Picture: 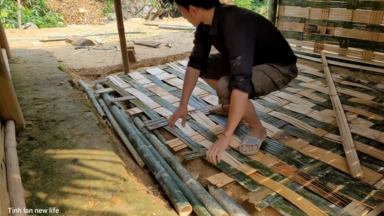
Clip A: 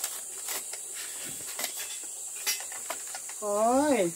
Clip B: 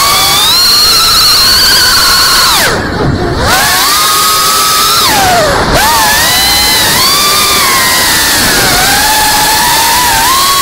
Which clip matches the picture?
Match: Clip A